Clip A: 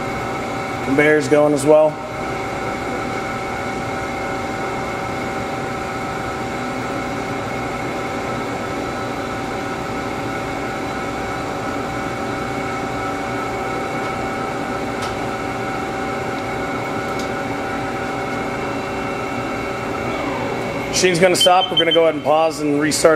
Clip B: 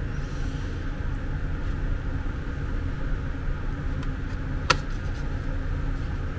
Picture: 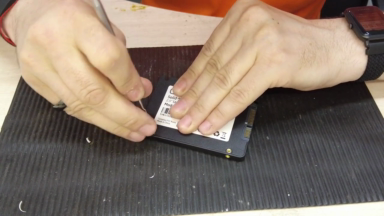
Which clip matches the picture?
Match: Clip B